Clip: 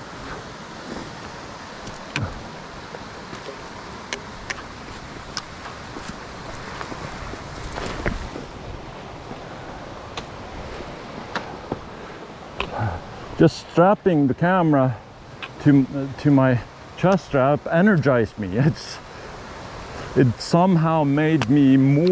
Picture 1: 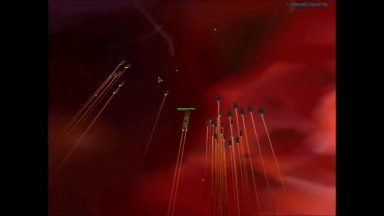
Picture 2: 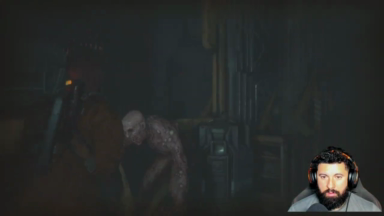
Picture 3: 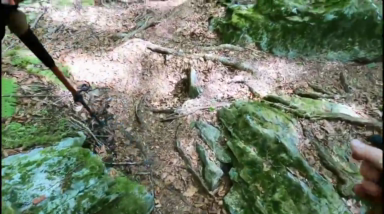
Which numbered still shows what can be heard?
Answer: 3